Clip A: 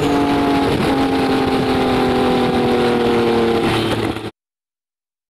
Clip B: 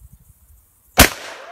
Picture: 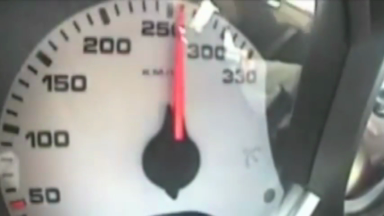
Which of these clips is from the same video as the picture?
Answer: A